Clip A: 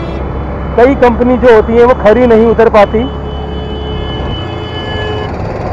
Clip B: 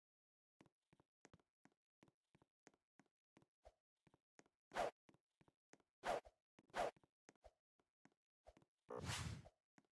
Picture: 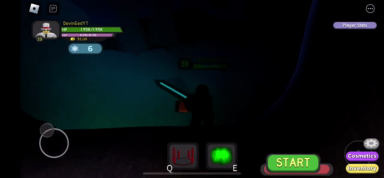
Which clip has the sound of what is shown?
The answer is B